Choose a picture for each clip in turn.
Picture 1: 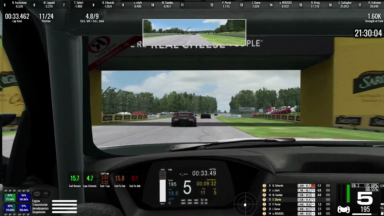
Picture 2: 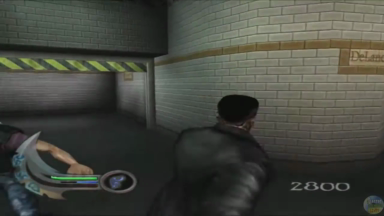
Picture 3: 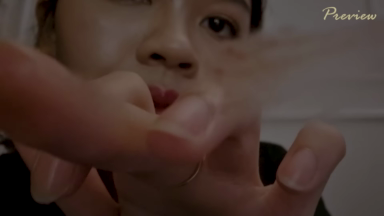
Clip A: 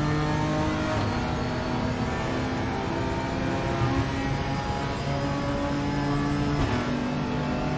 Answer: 1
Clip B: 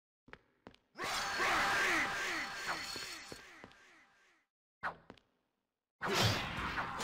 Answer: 2